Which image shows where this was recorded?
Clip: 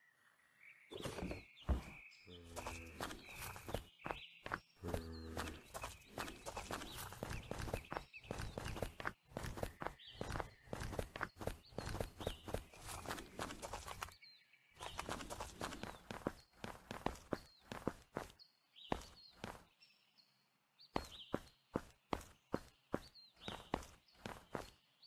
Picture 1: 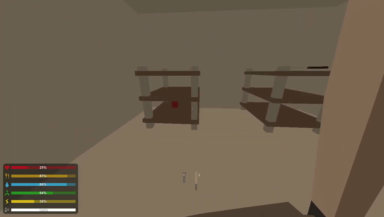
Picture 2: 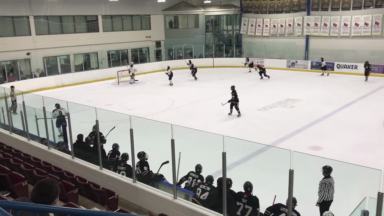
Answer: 1